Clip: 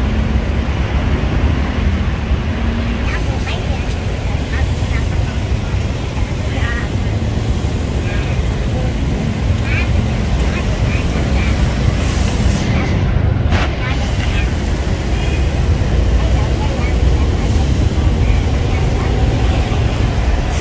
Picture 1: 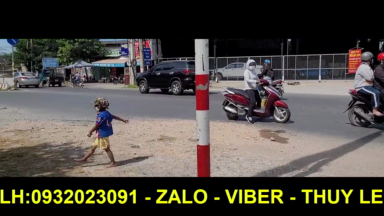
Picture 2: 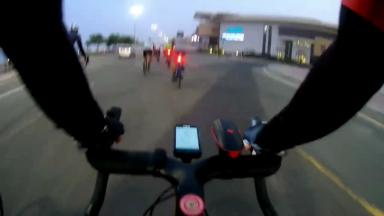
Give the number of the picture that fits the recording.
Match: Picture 1